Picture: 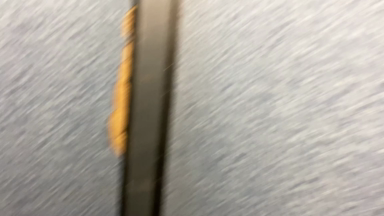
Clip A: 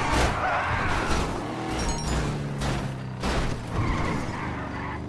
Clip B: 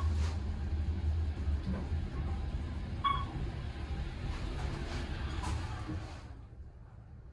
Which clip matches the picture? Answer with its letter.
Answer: B